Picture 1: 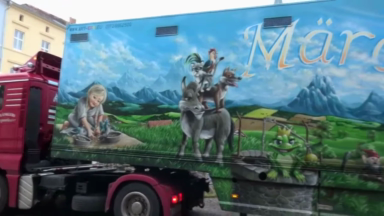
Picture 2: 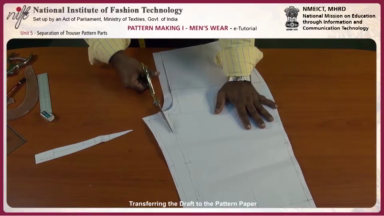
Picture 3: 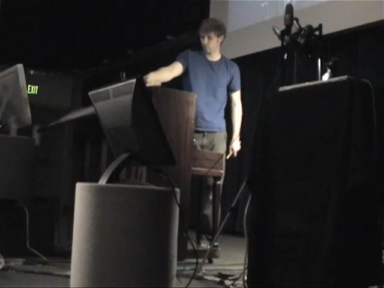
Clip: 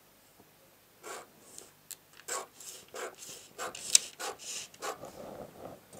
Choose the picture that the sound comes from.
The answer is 2